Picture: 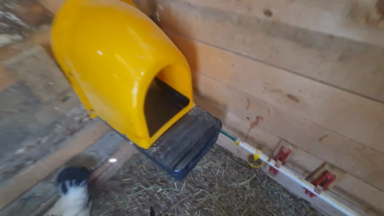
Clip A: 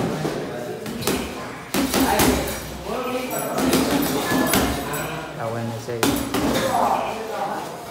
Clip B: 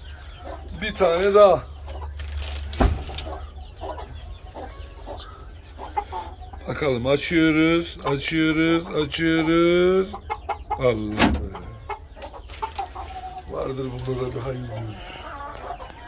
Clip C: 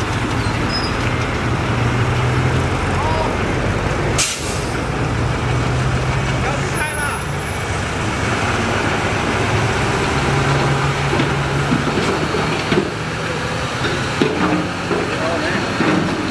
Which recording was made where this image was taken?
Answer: B